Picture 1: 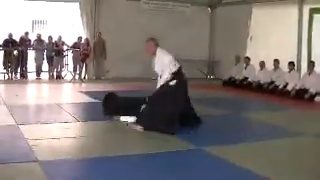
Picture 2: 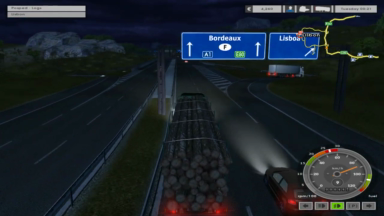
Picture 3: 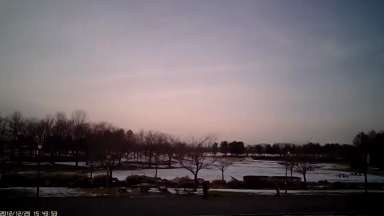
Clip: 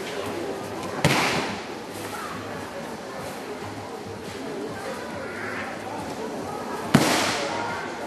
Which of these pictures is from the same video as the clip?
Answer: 1